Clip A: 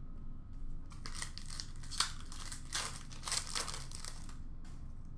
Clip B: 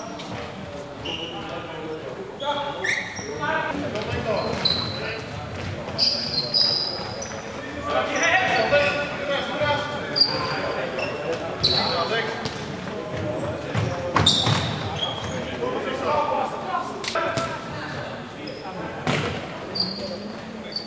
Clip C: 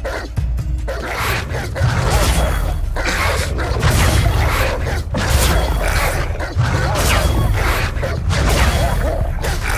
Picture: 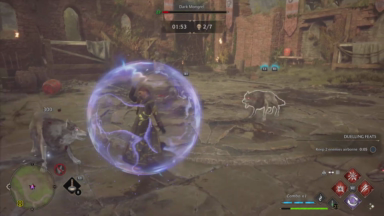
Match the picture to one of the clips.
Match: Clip C